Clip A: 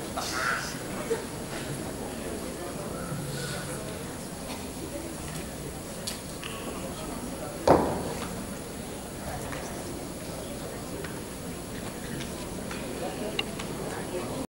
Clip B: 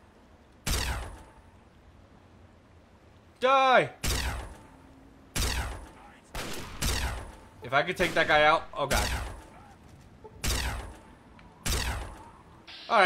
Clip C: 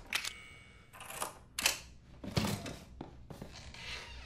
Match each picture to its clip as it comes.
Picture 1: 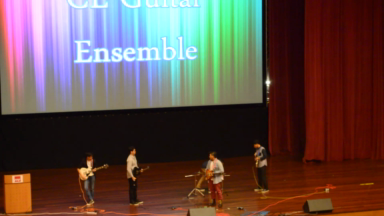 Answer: A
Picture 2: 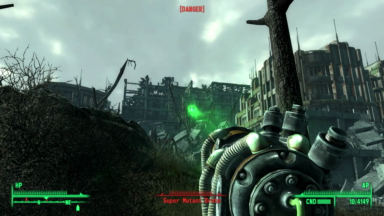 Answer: B